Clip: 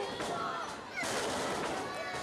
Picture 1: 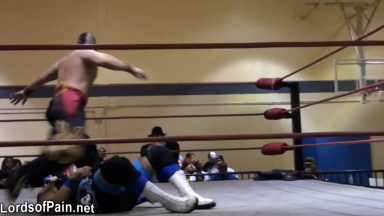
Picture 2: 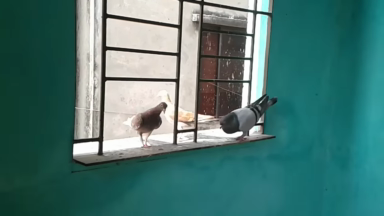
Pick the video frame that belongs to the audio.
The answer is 1